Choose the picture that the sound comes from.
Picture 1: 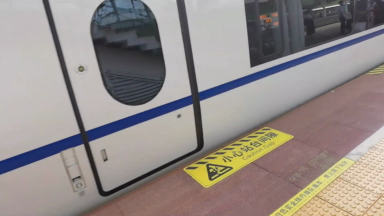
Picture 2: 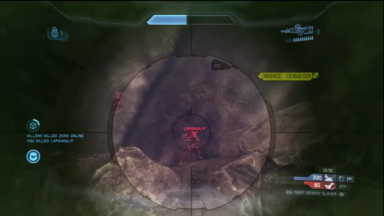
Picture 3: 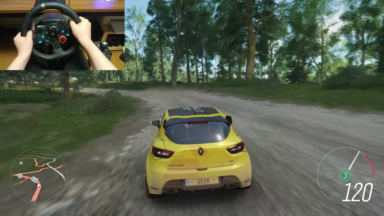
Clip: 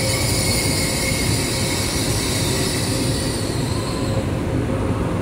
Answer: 1